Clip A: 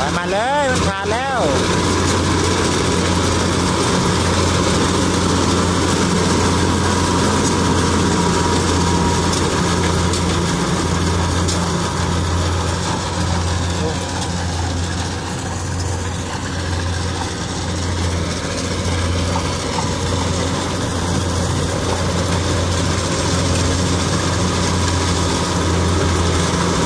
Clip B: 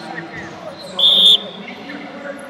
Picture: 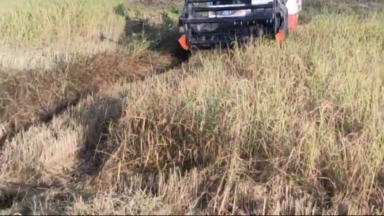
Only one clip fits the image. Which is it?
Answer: A